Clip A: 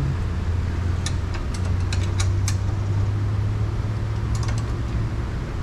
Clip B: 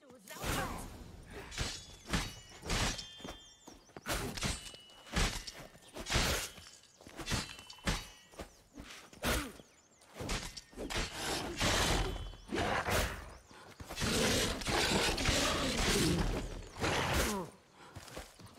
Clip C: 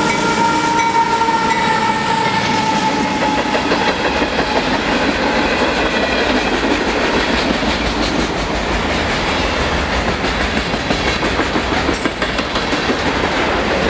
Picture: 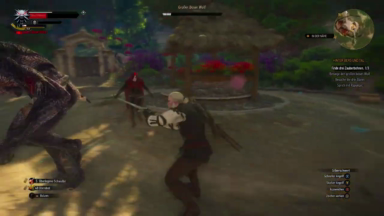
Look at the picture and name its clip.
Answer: B